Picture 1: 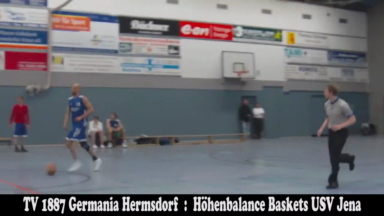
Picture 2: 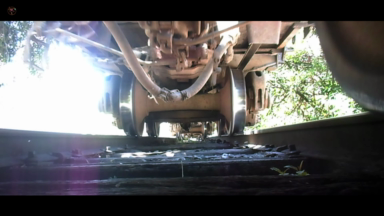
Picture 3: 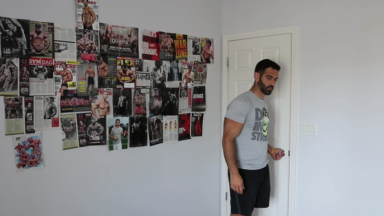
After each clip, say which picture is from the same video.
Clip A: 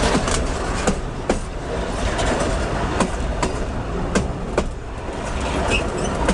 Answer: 2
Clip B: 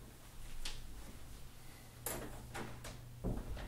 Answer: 3